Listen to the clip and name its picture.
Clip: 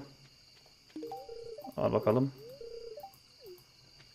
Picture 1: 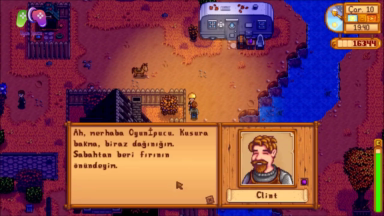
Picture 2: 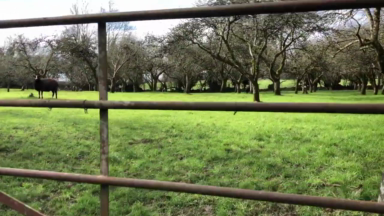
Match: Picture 1